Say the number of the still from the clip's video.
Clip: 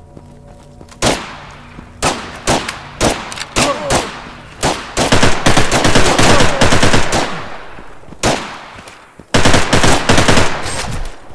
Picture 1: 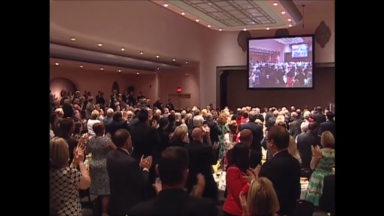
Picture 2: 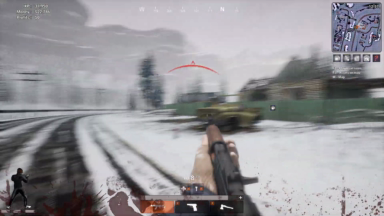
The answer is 2